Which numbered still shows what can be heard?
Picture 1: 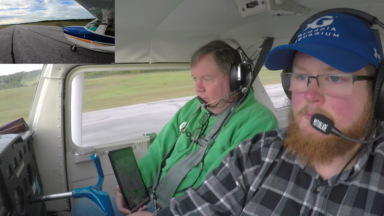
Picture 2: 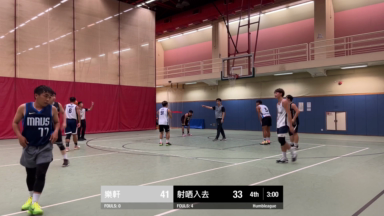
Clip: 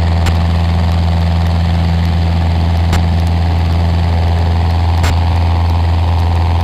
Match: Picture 1